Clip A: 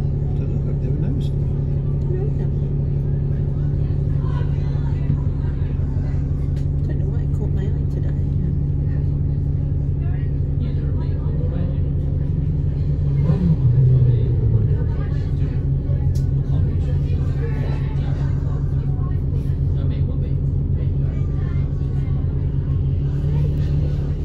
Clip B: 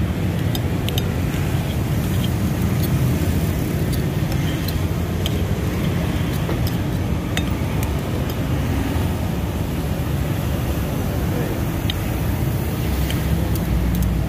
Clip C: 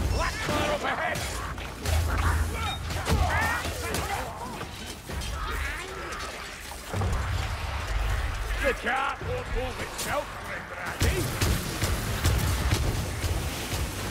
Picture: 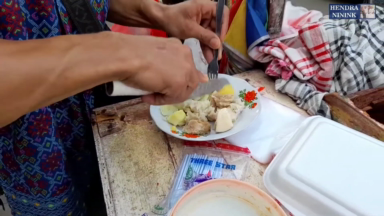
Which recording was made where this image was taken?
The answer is B